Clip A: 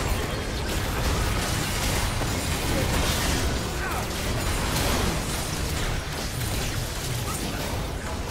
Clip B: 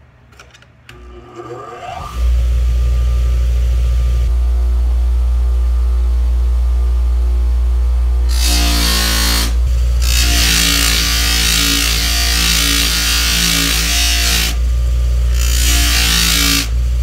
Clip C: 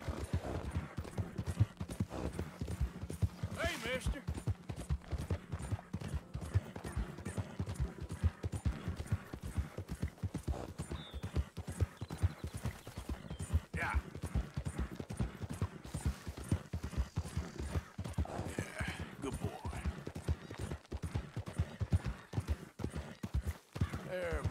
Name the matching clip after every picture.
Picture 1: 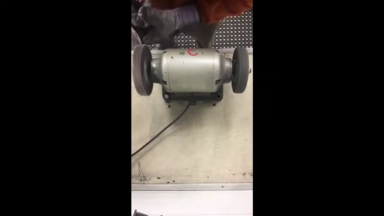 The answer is B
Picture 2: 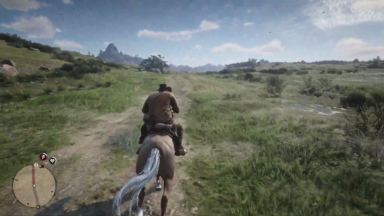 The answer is C